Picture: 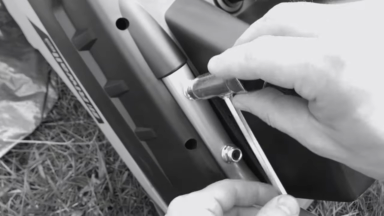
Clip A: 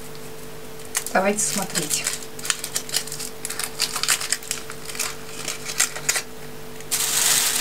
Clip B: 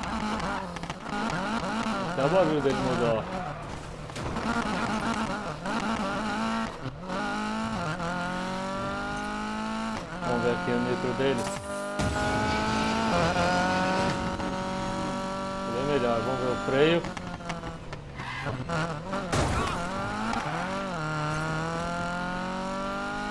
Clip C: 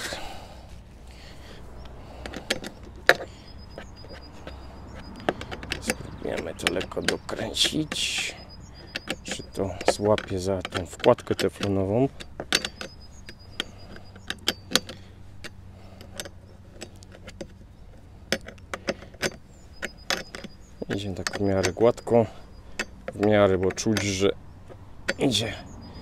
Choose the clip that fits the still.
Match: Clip C